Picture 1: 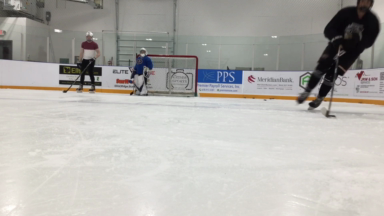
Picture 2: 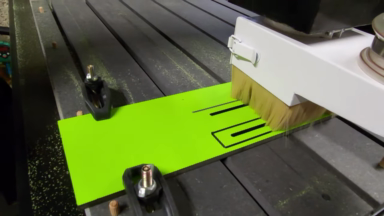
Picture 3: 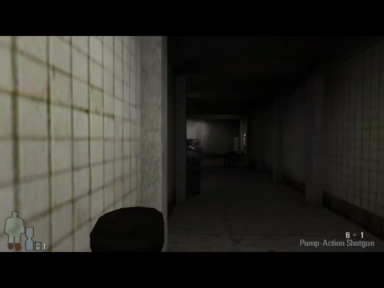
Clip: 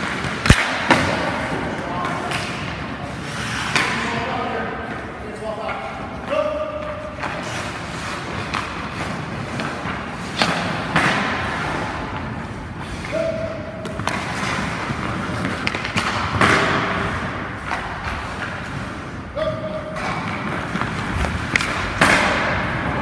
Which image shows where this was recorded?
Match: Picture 1